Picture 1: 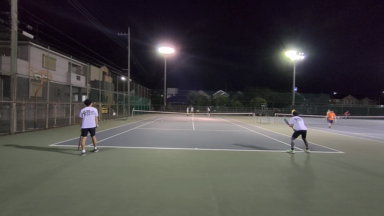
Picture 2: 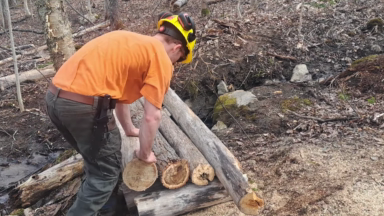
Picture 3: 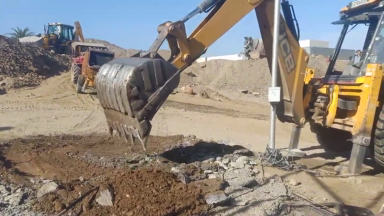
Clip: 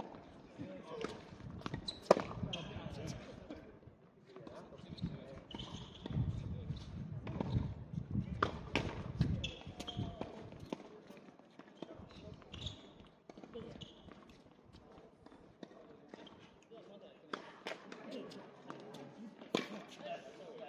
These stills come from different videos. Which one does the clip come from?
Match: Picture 1